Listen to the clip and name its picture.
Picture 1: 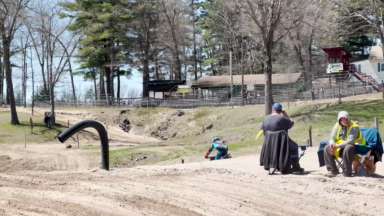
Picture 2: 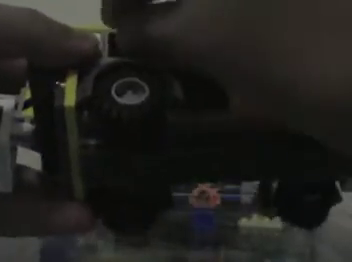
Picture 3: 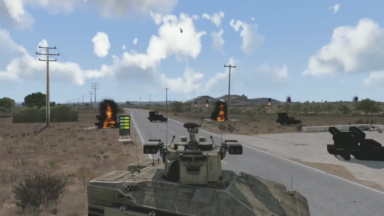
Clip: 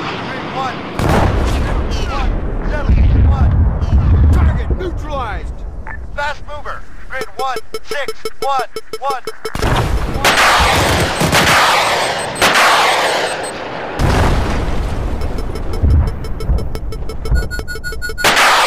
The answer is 3